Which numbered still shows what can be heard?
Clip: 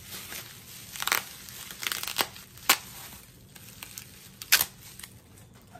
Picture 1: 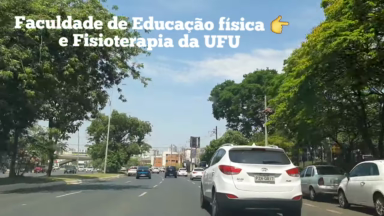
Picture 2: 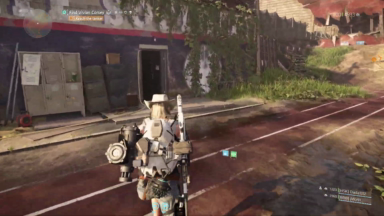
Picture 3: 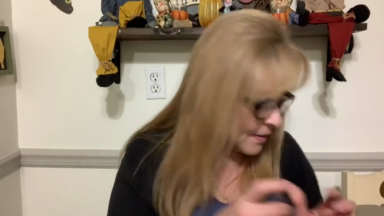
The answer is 3